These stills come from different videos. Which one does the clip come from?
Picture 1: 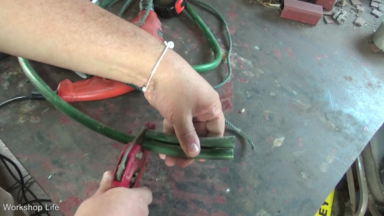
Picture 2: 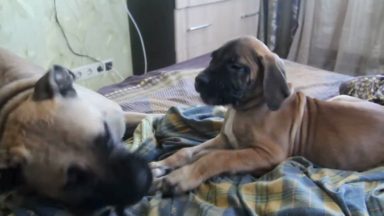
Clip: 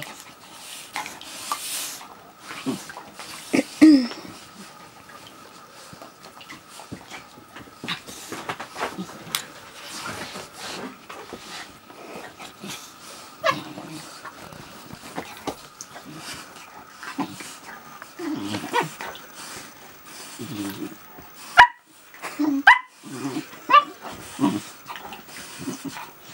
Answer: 2